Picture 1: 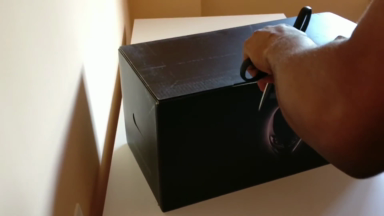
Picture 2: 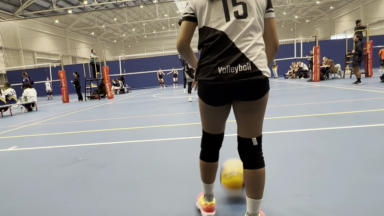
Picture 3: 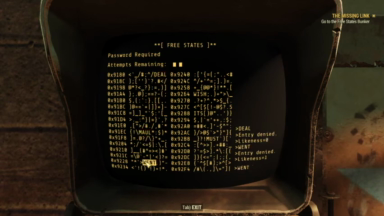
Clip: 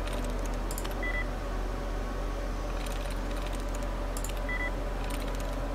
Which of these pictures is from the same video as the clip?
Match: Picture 3